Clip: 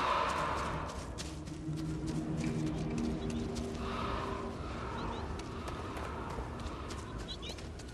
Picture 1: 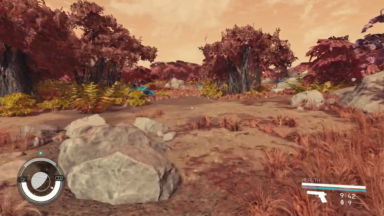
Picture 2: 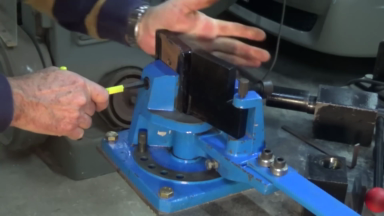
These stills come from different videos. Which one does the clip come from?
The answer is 1